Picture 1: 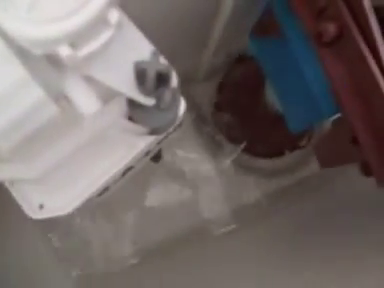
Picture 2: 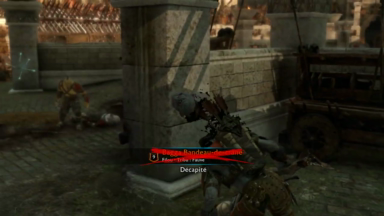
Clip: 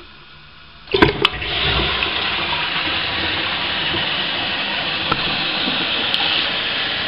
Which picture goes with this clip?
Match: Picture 1